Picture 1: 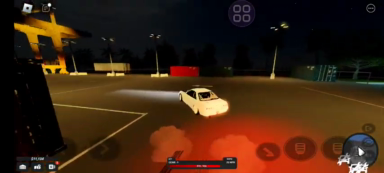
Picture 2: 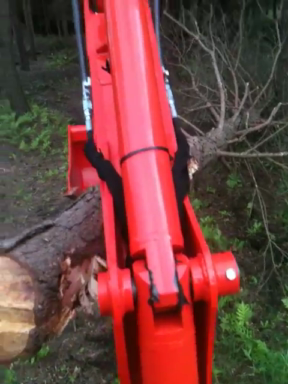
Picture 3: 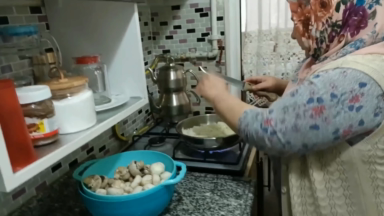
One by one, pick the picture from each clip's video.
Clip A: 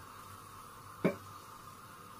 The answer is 3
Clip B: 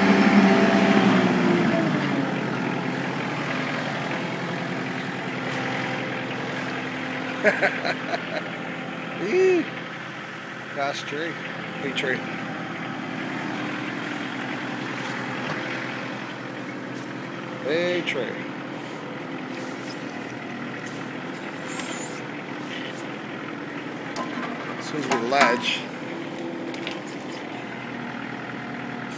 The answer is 2